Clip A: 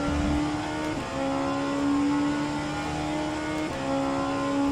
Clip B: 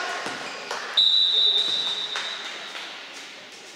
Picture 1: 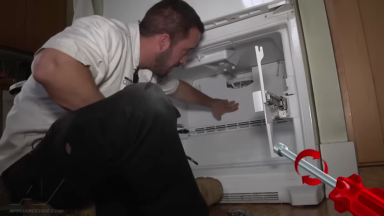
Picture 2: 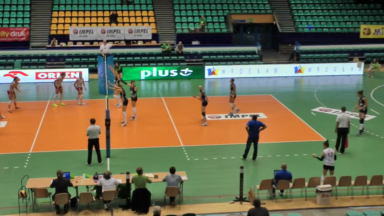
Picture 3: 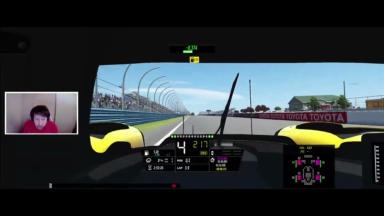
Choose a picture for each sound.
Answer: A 3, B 2